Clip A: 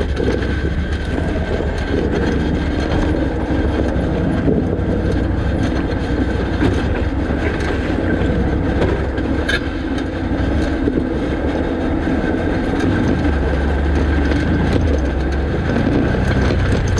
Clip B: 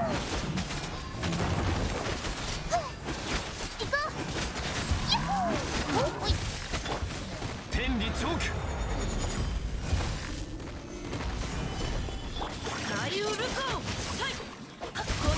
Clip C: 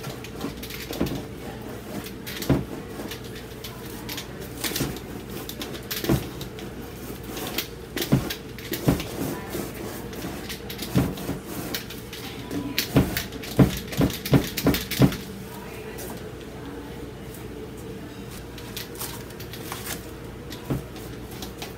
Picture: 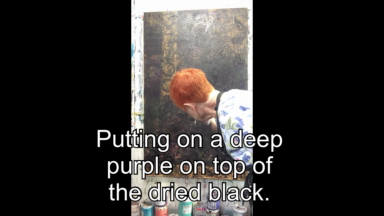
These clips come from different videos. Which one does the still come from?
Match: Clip C